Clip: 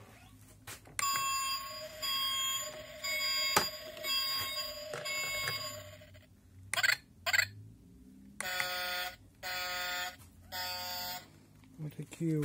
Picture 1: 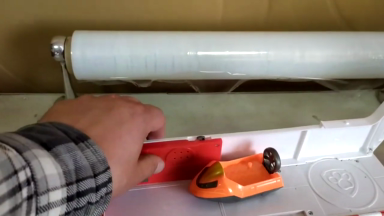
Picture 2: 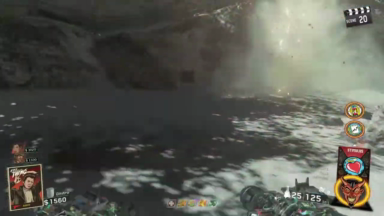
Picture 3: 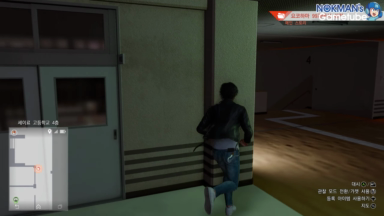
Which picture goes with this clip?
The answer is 1